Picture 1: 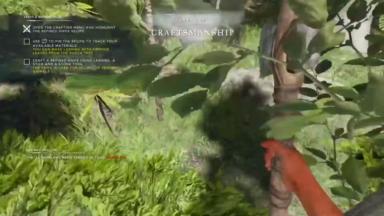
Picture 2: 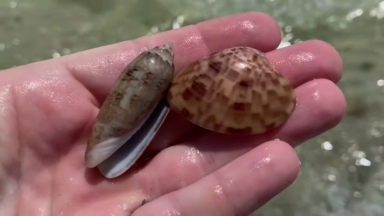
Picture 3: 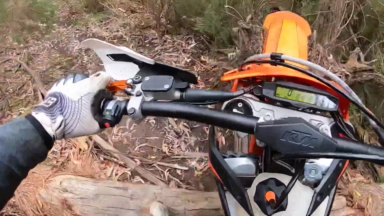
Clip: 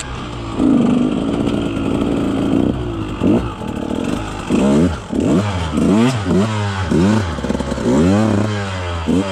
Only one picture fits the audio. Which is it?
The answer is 3